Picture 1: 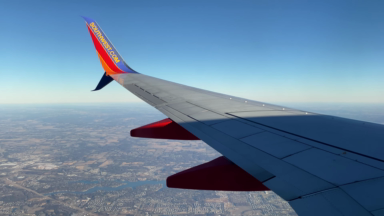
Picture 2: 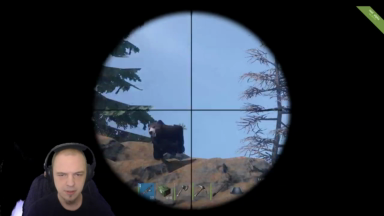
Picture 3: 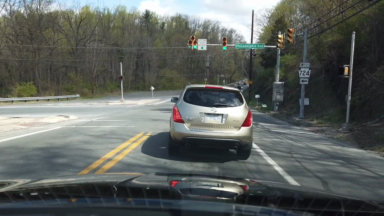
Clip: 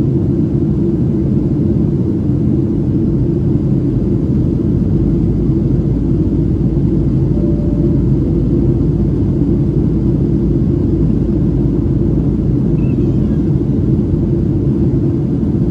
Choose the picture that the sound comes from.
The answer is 1